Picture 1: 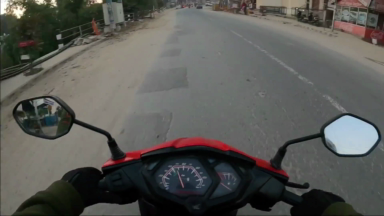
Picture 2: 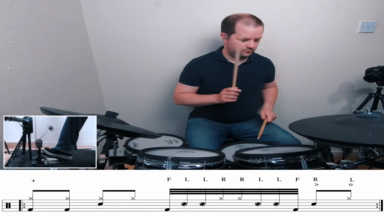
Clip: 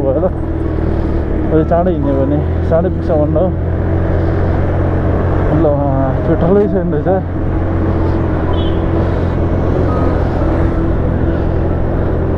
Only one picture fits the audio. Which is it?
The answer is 1